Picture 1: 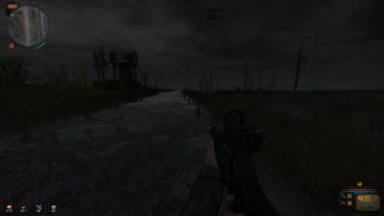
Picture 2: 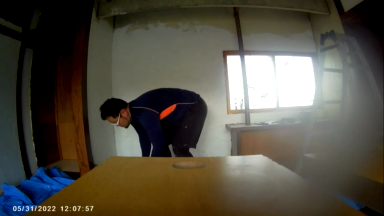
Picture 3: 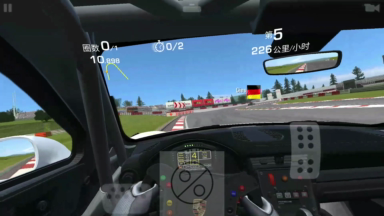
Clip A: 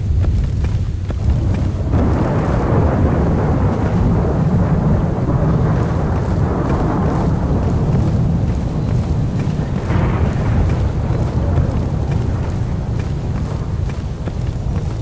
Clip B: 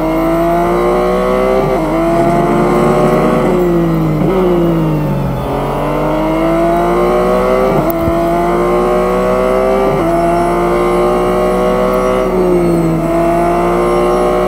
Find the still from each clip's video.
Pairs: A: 1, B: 3